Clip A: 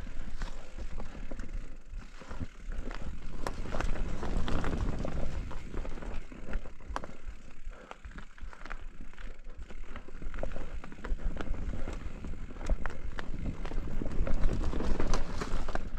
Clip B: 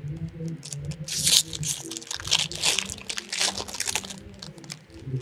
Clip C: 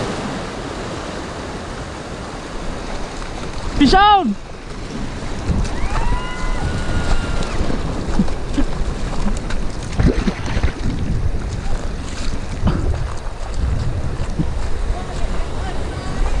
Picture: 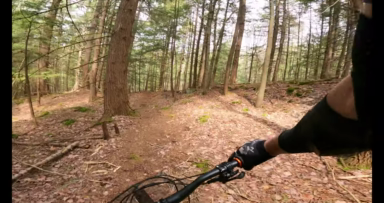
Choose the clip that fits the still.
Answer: A